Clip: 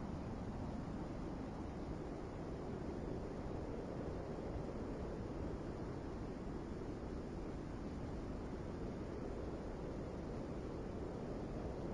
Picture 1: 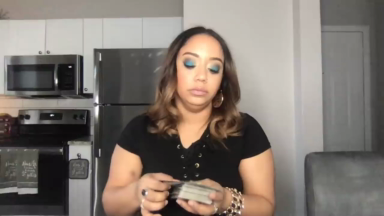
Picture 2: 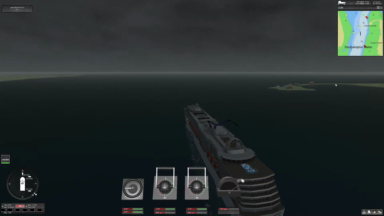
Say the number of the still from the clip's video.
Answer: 2